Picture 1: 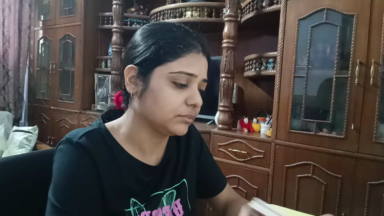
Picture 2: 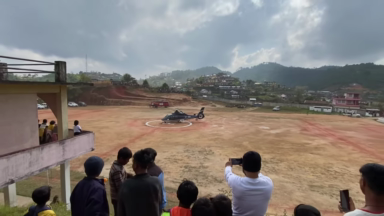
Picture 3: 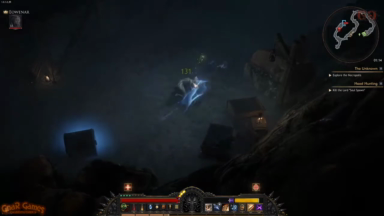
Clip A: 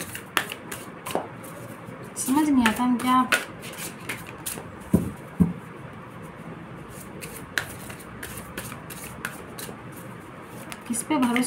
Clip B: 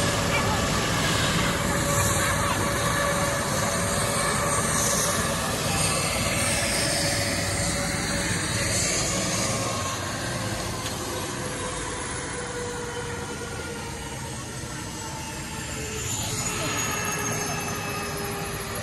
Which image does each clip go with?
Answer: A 1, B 2